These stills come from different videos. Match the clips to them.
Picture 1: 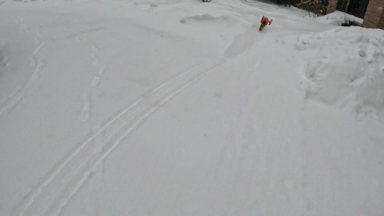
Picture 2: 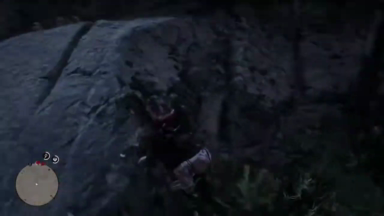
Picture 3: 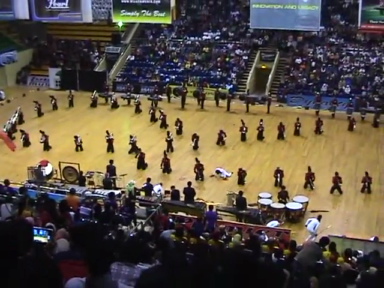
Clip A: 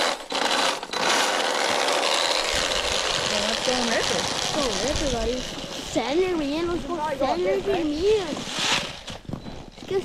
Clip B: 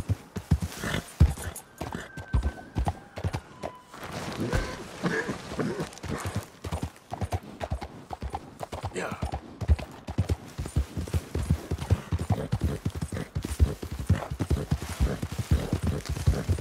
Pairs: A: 1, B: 2